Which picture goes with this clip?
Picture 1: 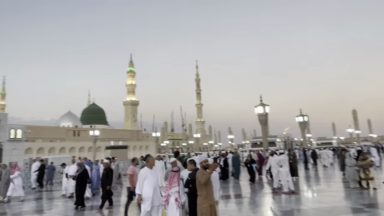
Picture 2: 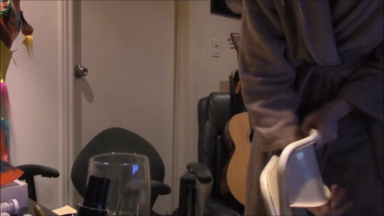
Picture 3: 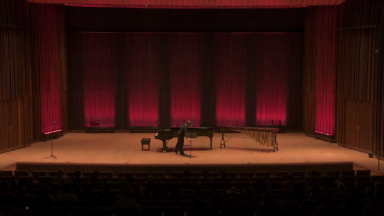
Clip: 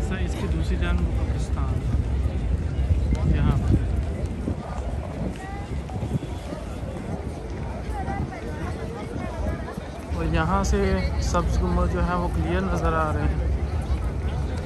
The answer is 1